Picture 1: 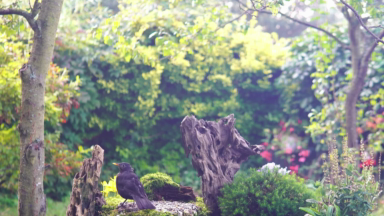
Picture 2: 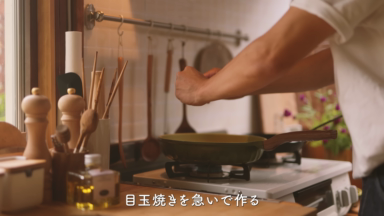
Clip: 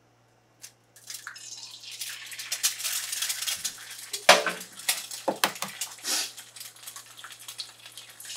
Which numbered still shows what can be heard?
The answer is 2